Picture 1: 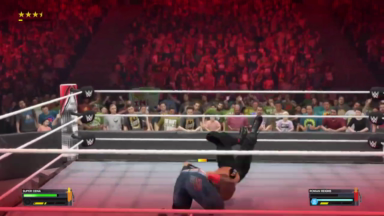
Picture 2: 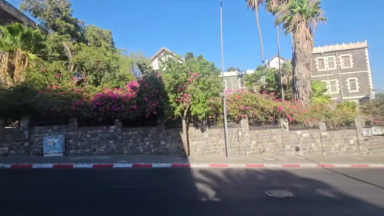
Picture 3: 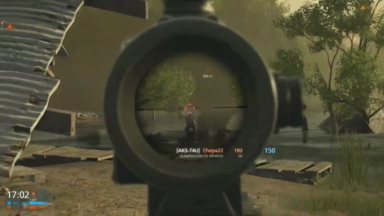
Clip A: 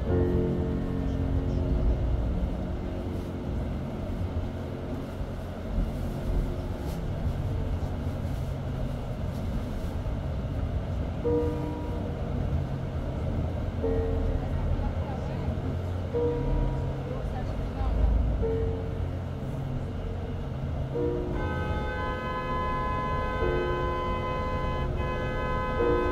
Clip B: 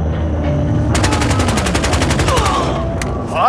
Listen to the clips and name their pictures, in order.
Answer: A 2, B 3